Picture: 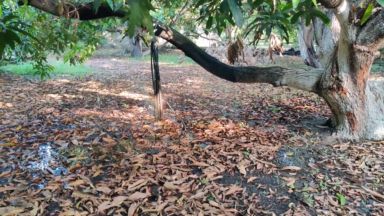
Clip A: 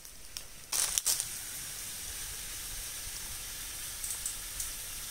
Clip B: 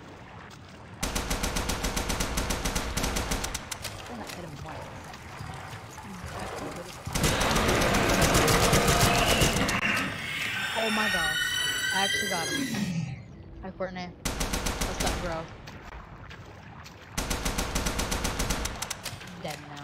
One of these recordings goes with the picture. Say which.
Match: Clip A